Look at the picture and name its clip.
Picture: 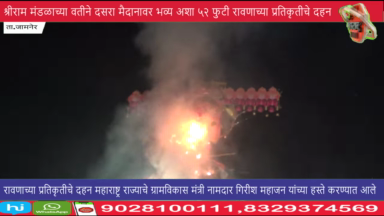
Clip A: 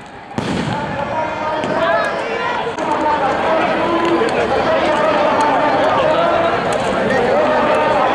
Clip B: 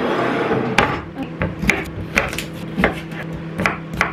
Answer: A